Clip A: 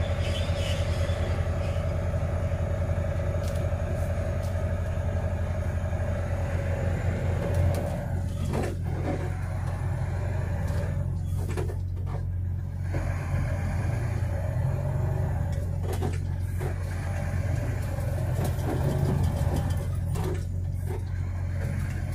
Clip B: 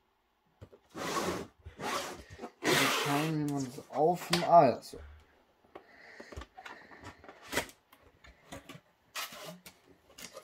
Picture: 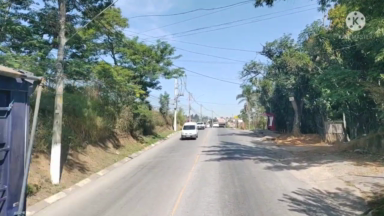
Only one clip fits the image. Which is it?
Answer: A